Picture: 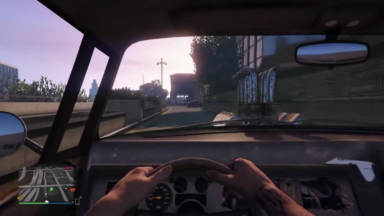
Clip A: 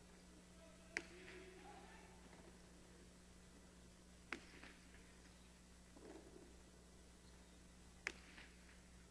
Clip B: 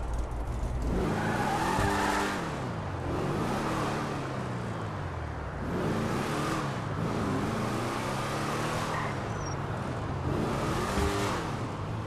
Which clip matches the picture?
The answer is B